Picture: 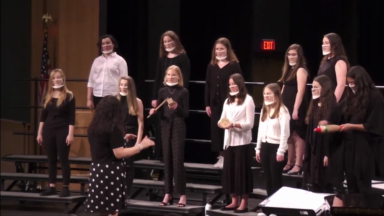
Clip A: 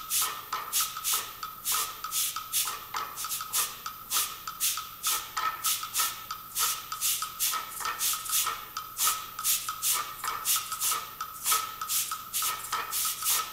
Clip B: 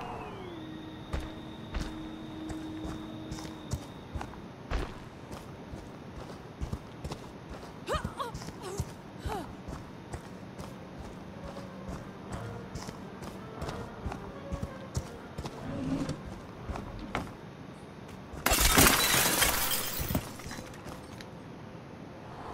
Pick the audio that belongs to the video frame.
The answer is A